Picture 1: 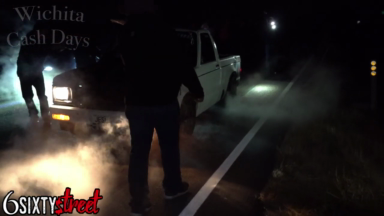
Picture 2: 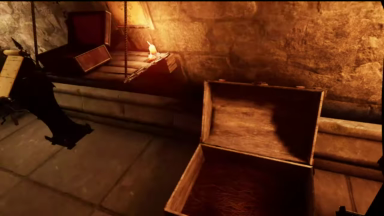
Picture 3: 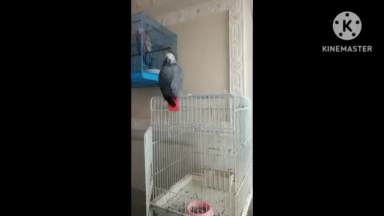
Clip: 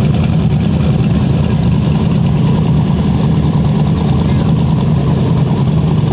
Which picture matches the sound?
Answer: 1